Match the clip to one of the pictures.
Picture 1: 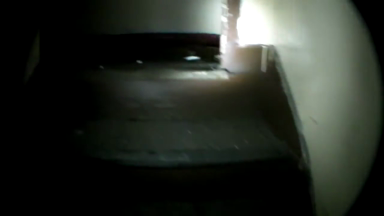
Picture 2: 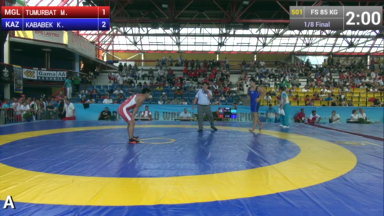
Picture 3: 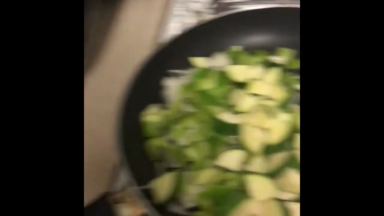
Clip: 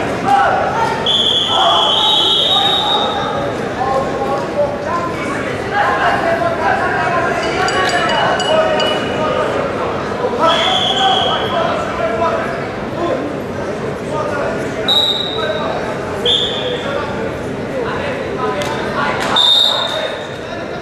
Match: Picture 2